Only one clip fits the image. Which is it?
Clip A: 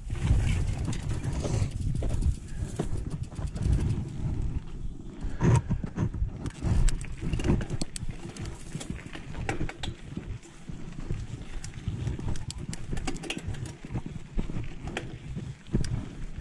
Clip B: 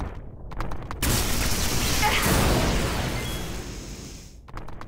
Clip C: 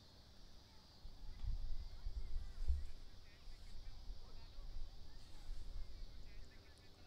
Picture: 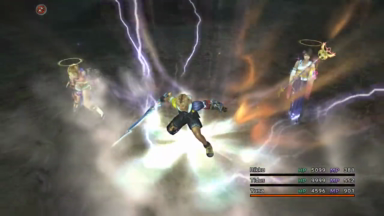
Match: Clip B